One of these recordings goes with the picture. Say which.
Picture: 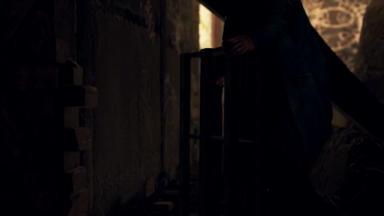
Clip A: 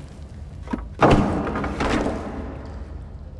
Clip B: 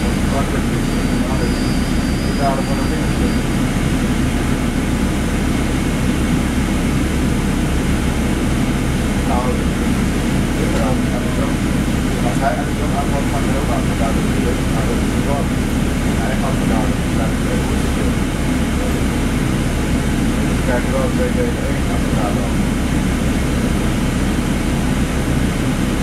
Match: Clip A